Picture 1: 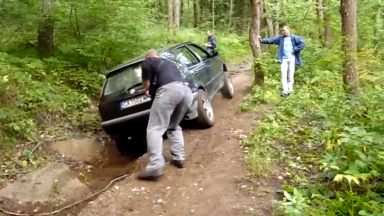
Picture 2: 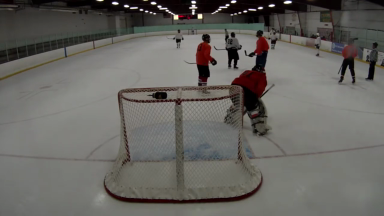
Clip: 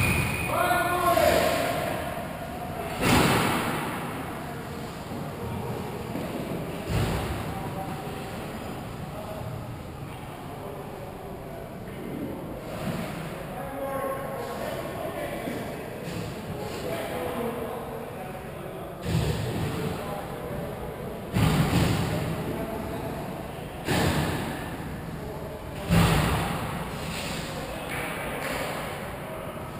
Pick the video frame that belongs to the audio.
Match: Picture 2